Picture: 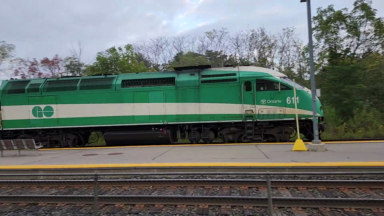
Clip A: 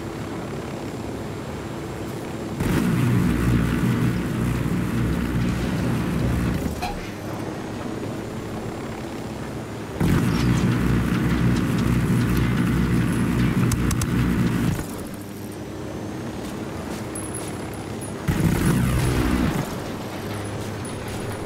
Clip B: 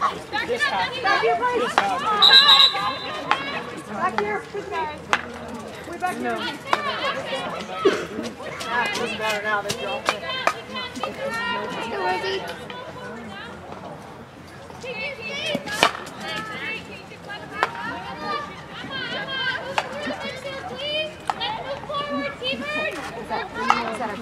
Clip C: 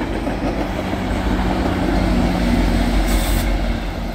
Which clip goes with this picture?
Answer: C